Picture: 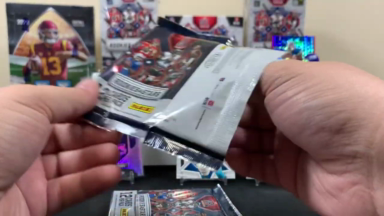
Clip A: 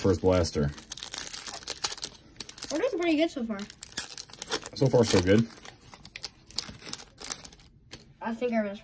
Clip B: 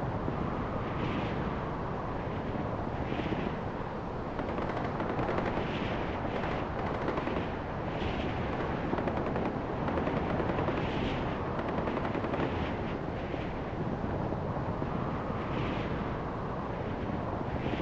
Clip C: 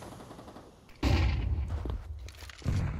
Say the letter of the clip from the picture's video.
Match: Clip A